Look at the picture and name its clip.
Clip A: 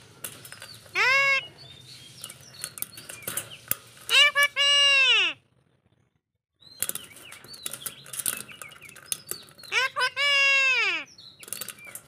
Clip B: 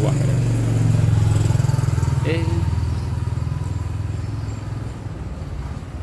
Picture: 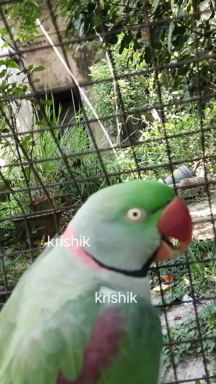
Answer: A